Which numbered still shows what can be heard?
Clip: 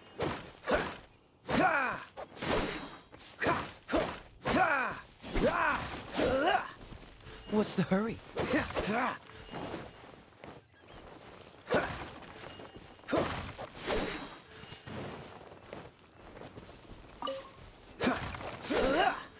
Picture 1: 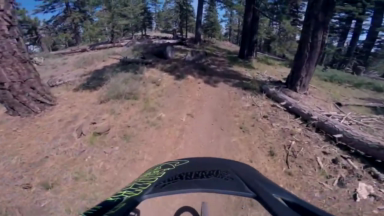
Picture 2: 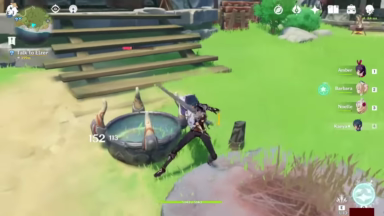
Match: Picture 2